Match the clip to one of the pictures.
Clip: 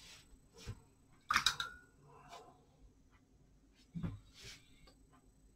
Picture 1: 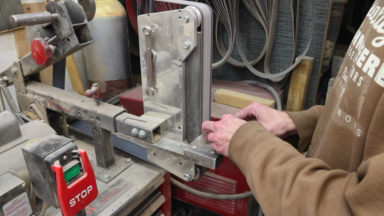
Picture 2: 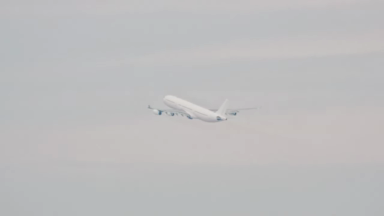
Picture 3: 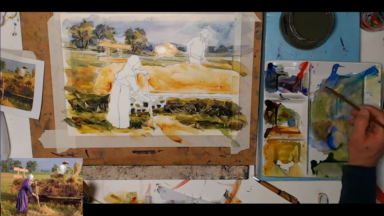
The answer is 3